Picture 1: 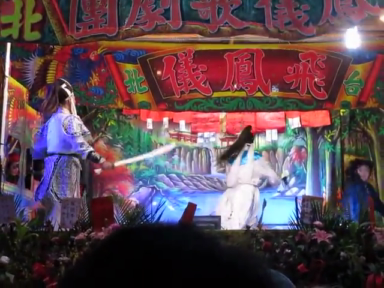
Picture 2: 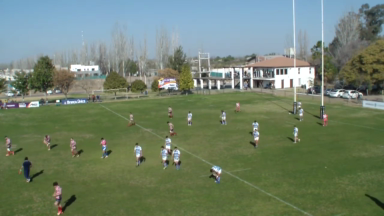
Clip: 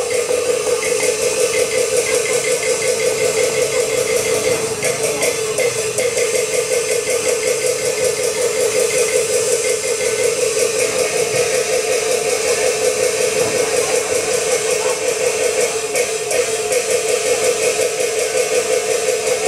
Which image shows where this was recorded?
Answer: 1